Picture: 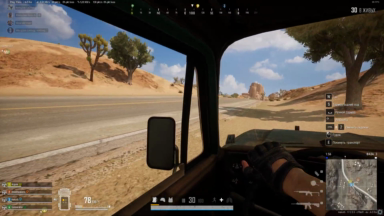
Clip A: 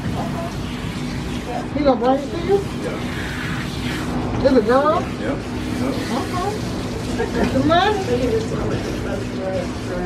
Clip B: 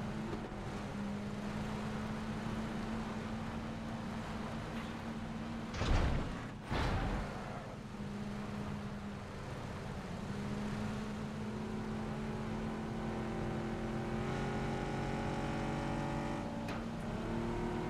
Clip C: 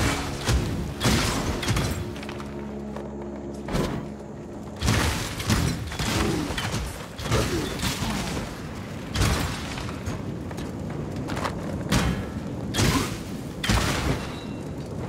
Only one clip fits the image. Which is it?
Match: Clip B